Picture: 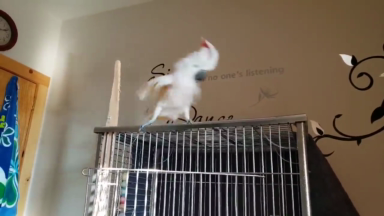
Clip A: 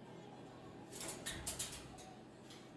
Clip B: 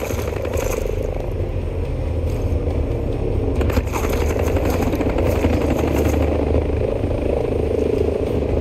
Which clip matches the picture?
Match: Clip A